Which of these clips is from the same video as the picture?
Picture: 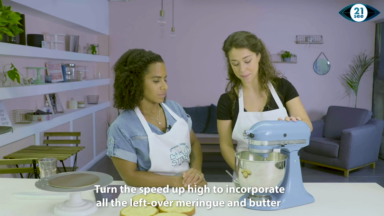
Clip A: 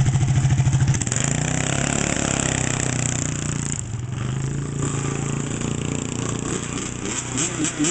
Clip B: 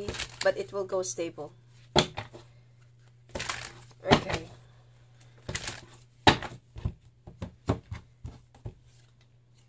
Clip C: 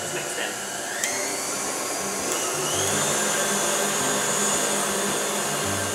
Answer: C